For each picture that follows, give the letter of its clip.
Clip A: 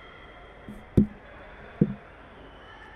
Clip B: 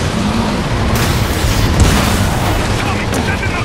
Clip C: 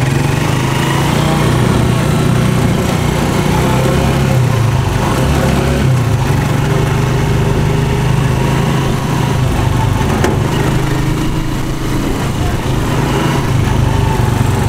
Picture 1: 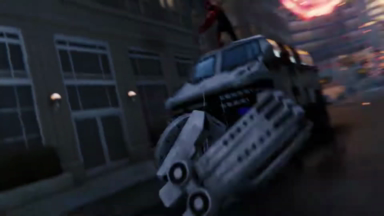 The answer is B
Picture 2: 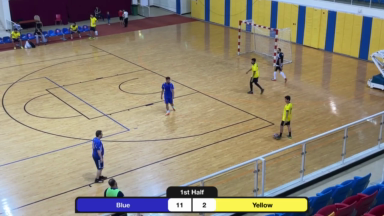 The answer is A